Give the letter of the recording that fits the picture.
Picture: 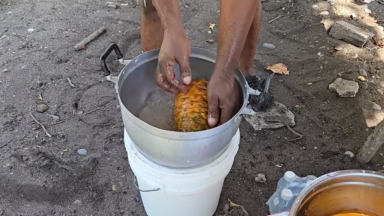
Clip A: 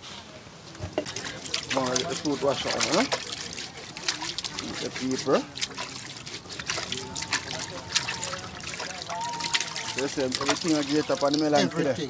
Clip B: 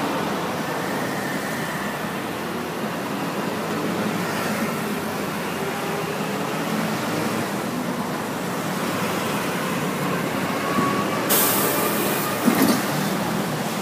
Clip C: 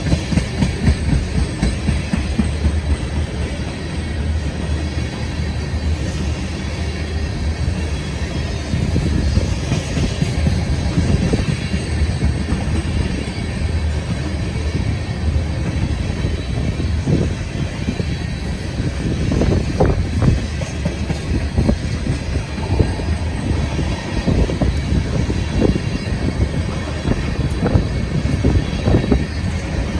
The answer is A